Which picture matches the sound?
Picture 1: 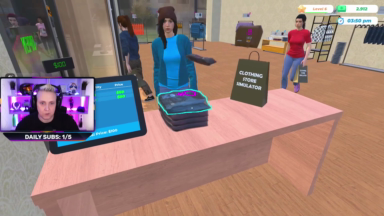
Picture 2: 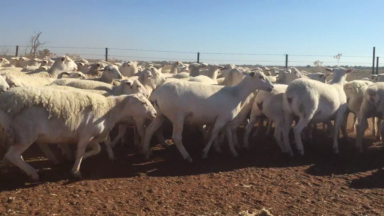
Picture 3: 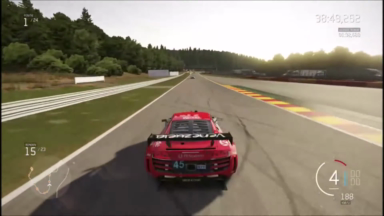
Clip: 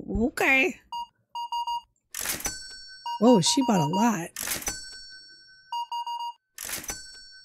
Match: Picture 1